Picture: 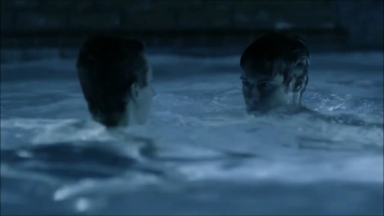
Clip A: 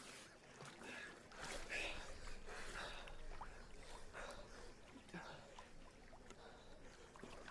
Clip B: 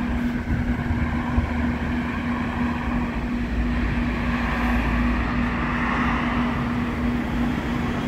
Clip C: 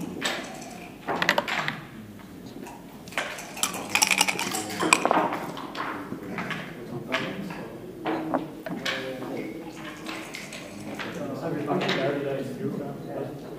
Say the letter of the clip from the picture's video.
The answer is A